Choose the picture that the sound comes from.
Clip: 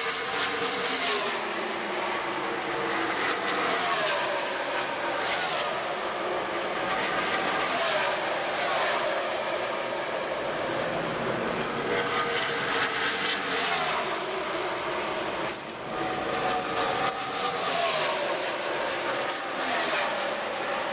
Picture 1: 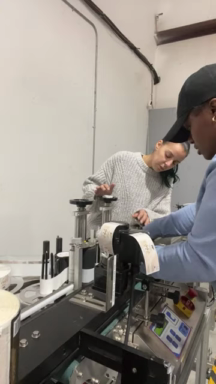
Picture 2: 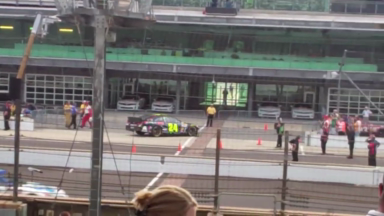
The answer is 2